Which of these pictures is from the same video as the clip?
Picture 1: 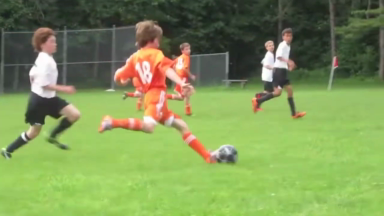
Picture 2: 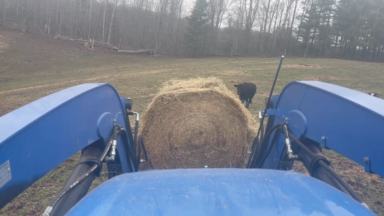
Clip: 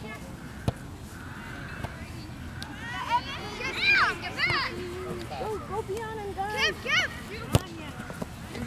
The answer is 1